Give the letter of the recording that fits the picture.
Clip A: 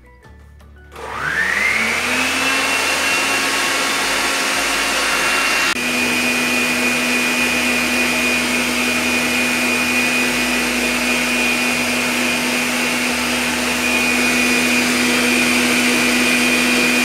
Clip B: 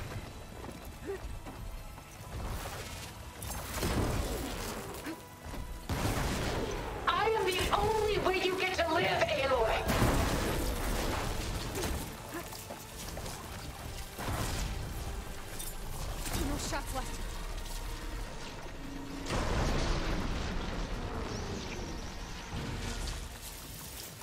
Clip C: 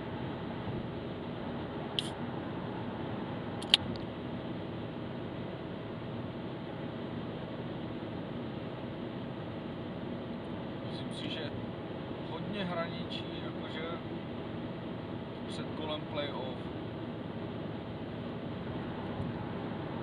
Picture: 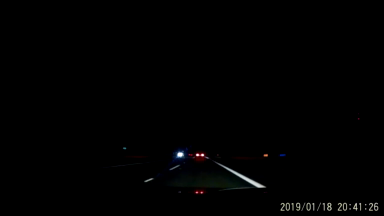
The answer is C